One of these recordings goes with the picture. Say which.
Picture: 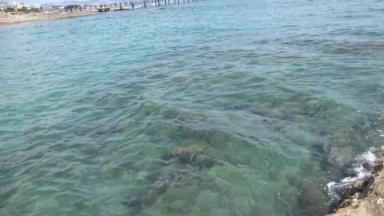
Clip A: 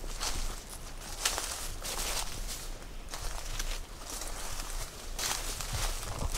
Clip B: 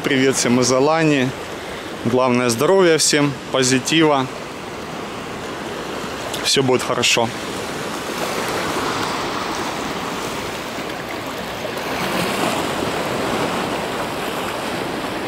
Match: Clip B